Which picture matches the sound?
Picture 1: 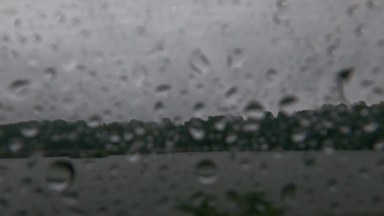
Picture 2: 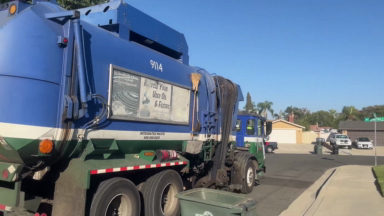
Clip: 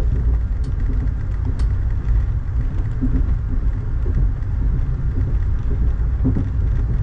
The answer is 1